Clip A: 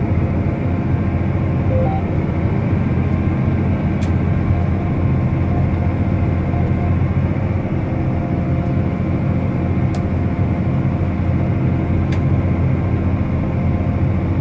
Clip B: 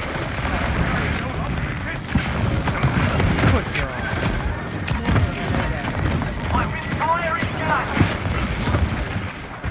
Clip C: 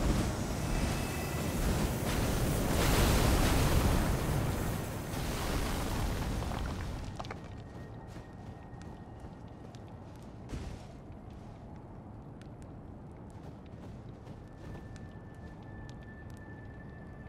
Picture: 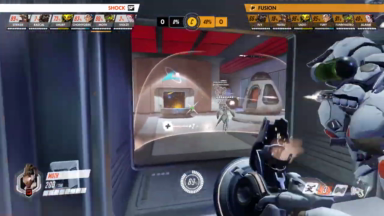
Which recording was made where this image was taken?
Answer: B